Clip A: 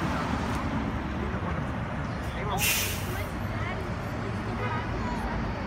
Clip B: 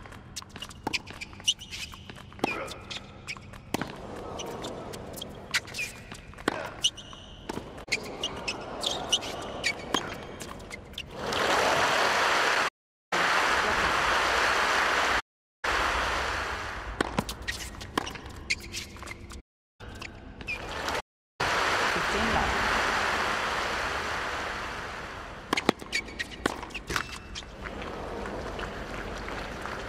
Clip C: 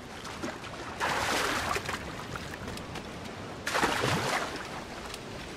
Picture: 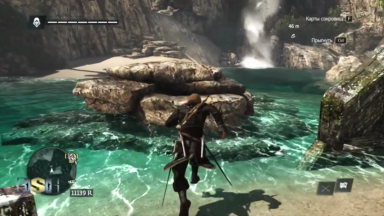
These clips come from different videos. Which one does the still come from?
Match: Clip C